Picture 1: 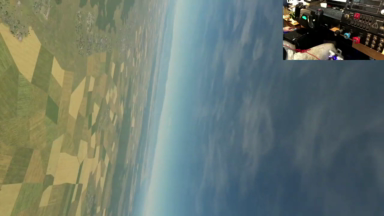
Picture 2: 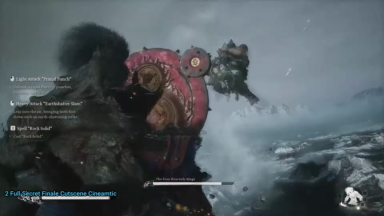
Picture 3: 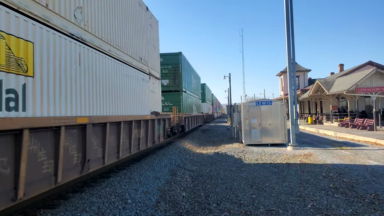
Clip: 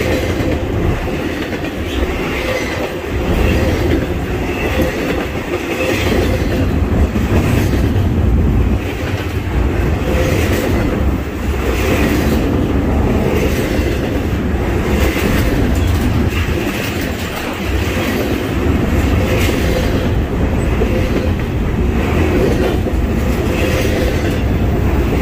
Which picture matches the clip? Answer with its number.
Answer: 3